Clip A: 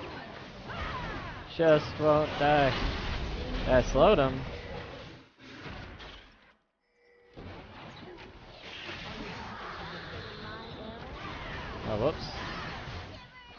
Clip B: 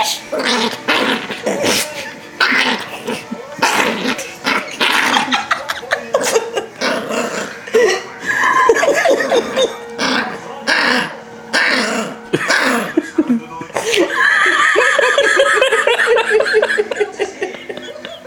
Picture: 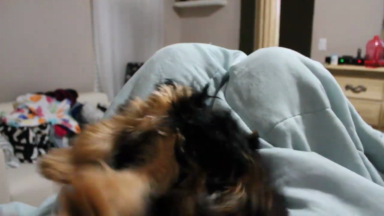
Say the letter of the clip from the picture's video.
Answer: B